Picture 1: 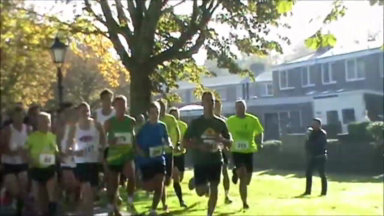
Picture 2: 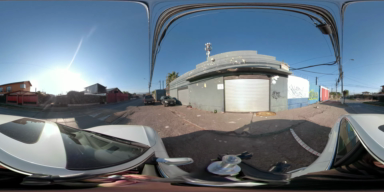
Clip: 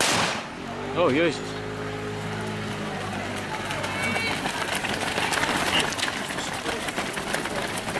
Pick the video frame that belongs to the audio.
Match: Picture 1